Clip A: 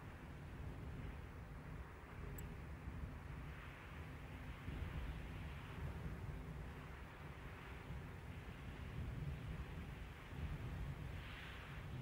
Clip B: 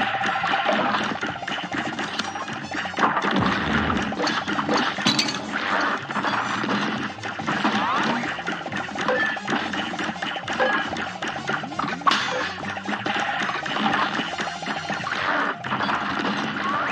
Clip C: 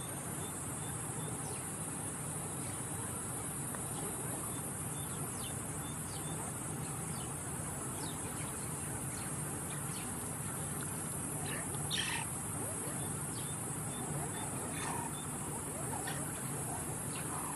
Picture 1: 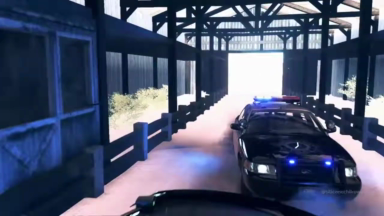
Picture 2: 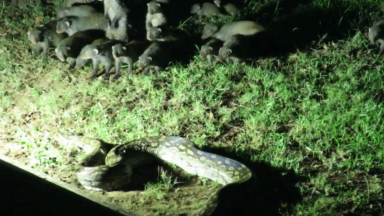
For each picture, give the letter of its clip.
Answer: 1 A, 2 C